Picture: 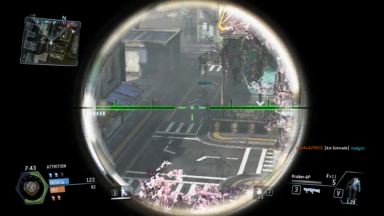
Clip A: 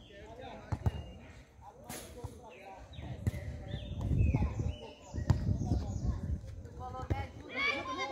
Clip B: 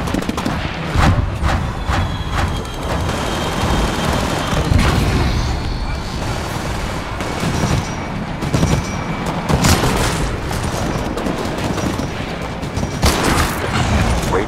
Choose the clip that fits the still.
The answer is B